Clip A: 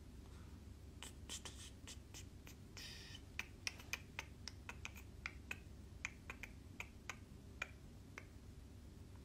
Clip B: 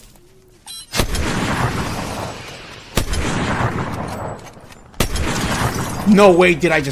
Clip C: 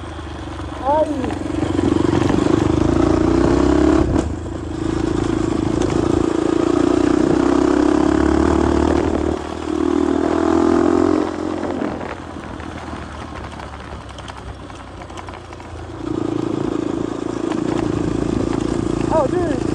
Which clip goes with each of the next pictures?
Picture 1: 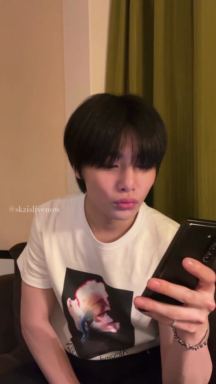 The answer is A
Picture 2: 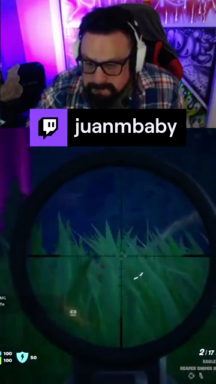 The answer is B